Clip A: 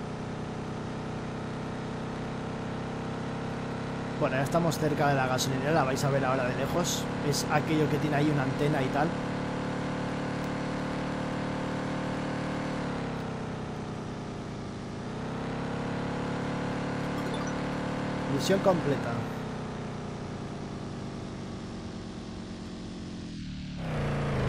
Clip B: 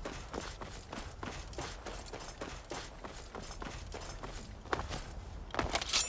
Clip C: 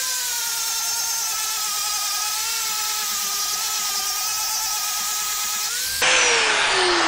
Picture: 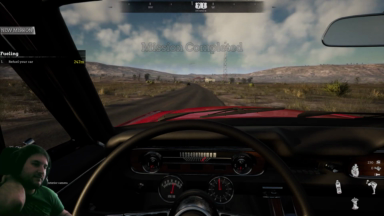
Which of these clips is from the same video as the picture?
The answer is A